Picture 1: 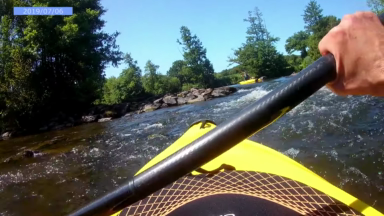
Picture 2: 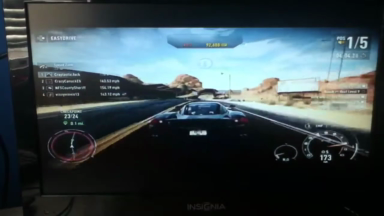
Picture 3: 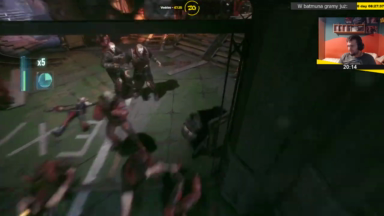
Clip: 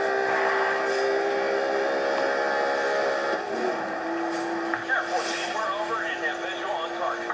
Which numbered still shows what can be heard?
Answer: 2